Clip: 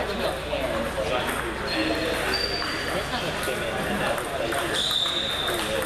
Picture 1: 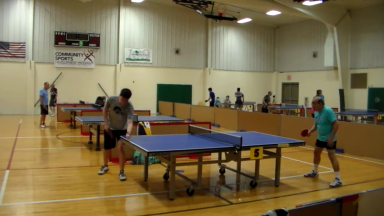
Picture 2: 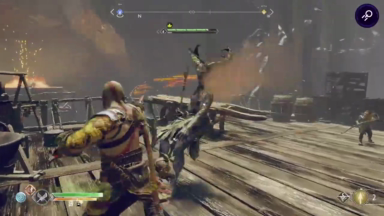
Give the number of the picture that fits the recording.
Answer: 1